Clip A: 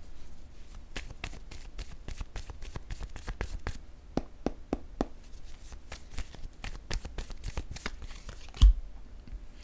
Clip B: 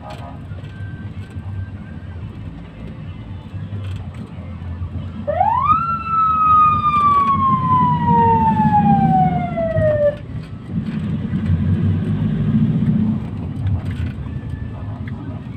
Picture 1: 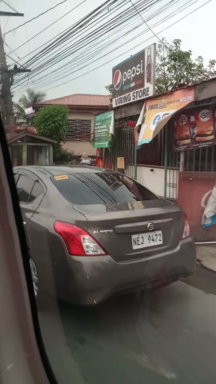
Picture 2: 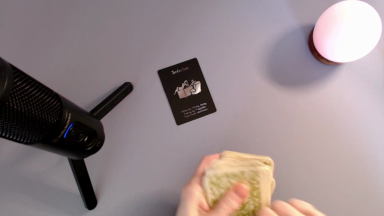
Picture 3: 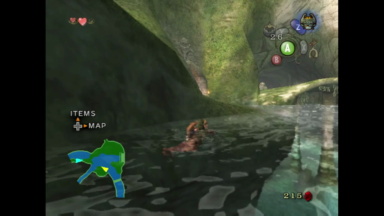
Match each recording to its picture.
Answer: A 2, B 1